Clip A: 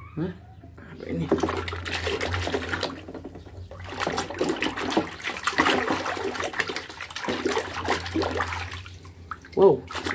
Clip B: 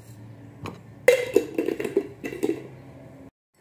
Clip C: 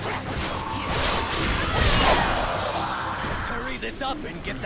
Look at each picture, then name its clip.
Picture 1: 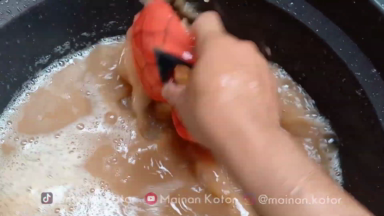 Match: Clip A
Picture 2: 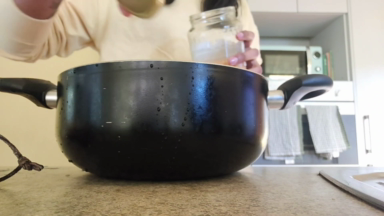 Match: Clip B